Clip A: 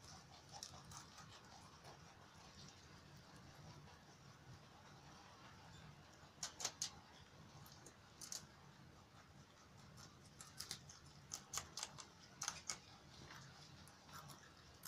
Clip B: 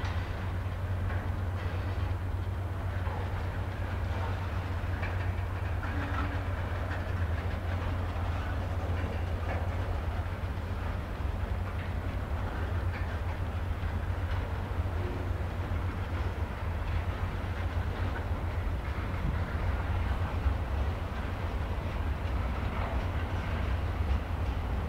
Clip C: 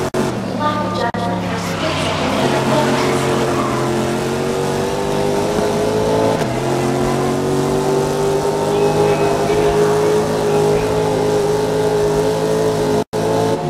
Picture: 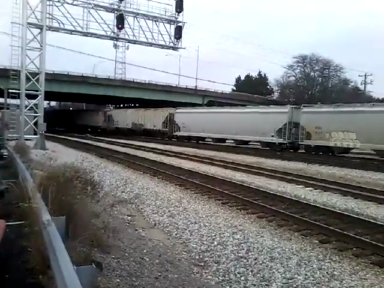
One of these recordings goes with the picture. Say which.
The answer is B